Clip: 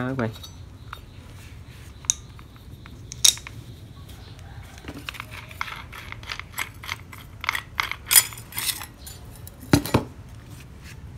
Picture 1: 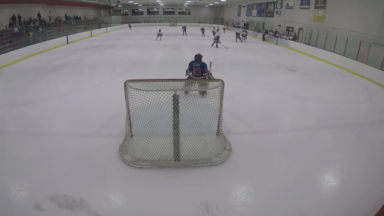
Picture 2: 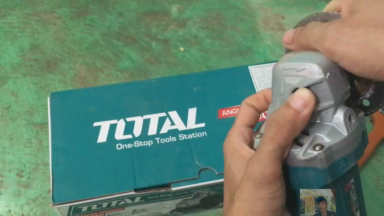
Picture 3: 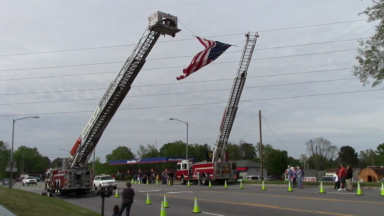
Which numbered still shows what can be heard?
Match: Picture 2